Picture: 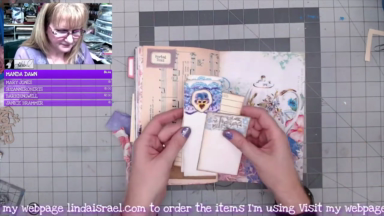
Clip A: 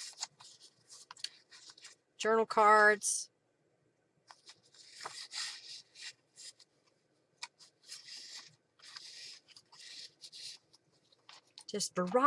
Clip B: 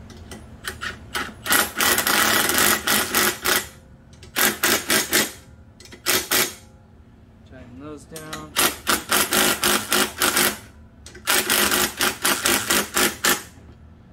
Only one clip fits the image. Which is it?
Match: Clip A